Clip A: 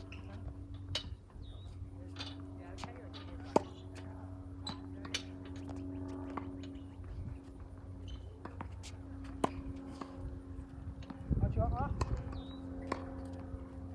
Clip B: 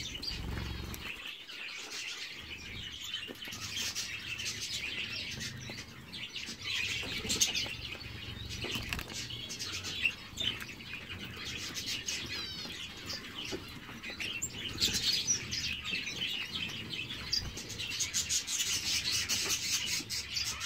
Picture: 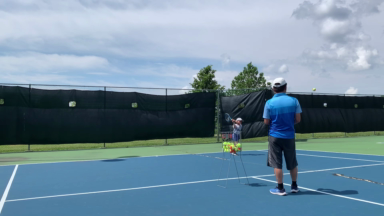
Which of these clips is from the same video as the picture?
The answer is A